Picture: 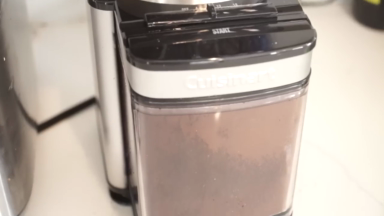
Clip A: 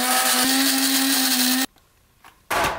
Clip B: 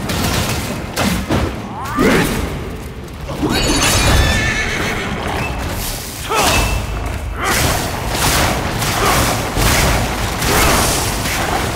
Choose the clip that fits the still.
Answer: A